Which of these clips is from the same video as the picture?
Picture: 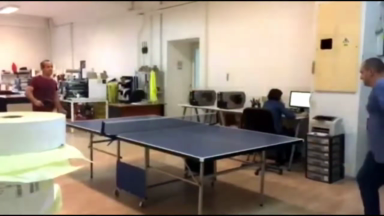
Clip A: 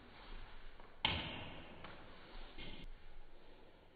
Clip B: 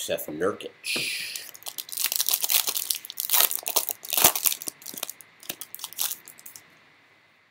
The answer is A